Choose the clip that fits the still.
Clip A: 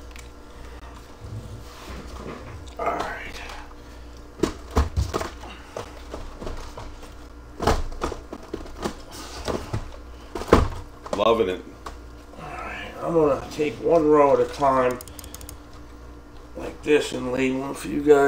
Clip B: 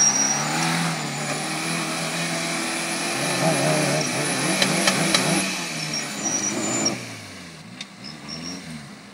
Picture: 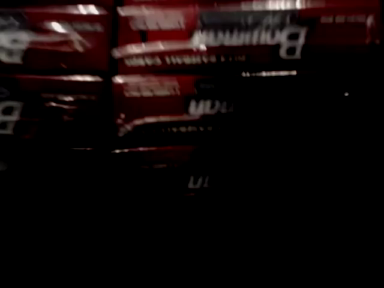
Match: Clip A